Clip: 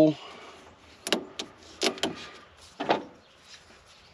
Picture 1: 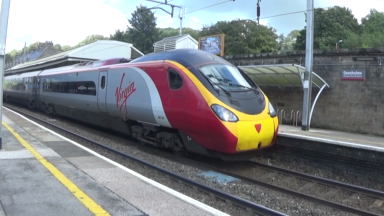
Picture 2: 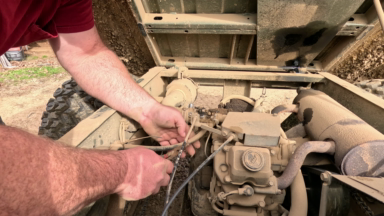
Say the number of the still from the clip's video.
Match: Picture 2